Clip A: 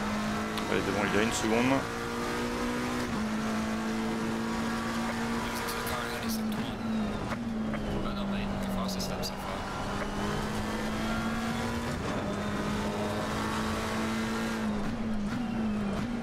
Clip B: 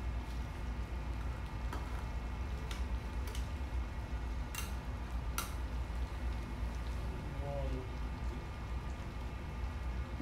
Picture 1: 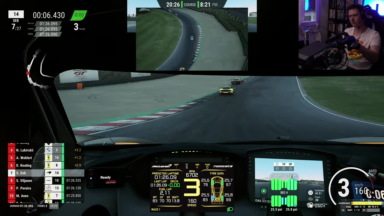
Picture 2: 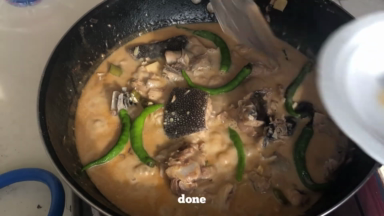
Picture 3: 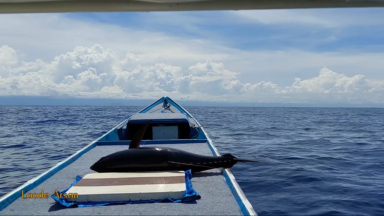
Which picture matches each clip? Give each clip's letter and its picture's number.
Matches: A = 1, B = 2